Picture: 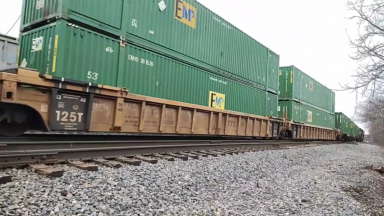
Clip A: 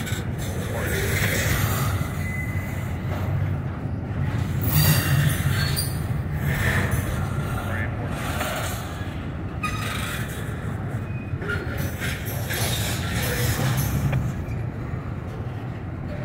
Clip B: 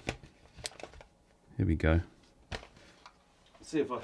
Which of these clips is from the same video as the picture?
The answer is A